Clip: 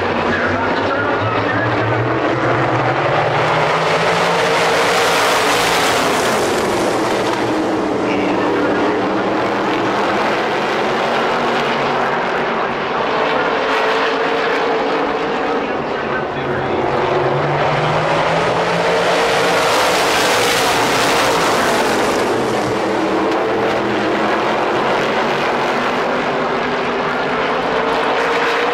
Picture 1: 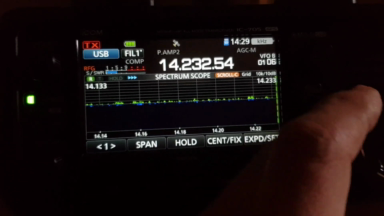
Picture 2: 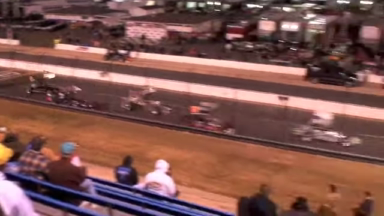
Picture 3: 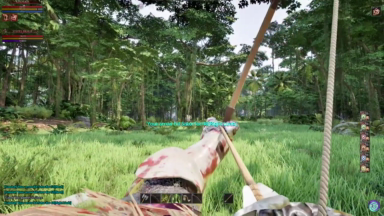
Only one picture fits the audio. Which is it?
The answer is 2